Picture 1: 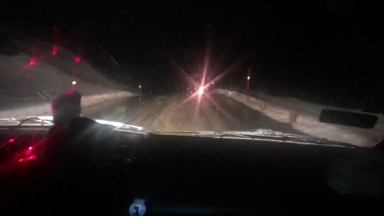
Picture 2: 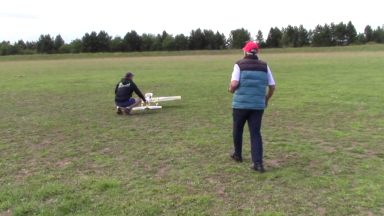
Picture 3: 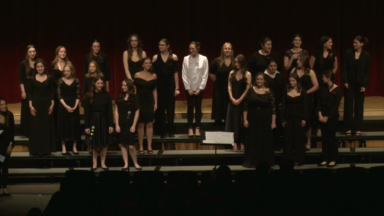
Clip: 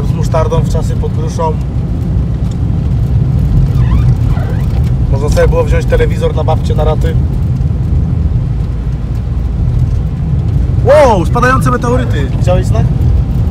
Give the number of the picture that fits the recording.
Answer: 1